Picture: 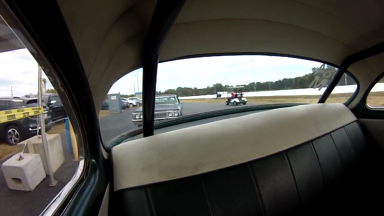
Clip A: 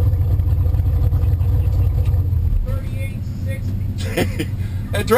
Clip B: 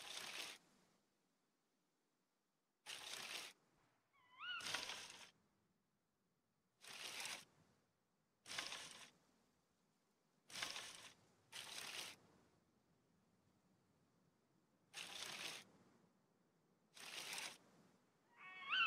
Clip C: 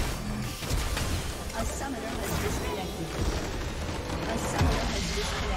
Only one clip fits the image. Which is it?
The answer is A